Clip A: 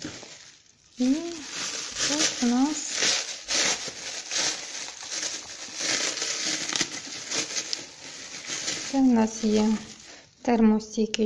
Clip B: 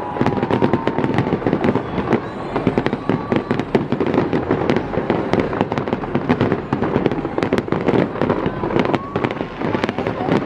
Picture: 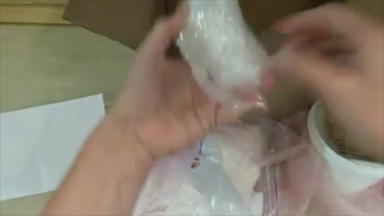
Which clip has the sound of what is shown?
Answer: A